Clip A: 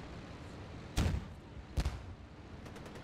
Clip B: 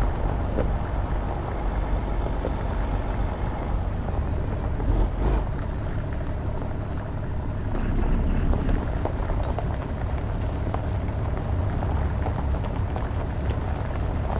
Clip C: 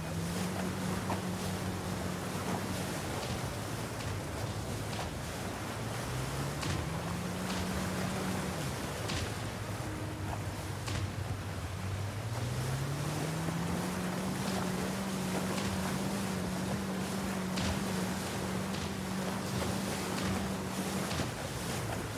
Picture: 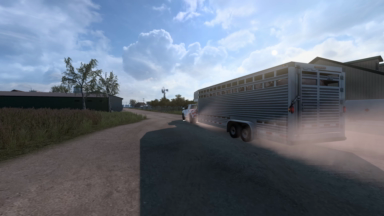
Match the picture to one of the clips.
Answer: B